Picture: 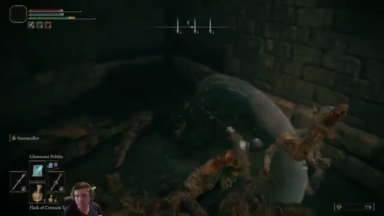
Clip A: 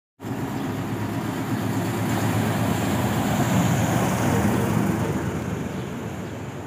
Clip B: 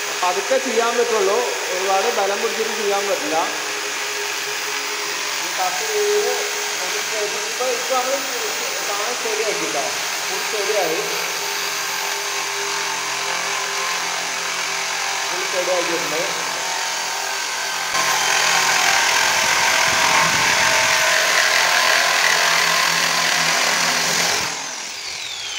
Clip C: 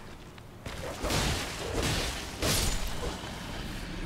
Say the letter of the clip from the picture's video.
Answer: C